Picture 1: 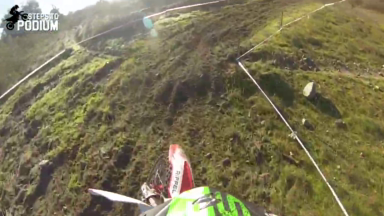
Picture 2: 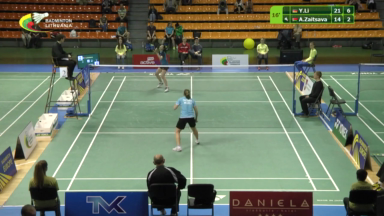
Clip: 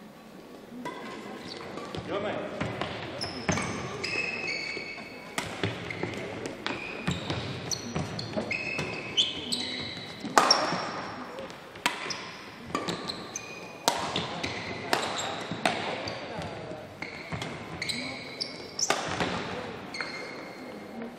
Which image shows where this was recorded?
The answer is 2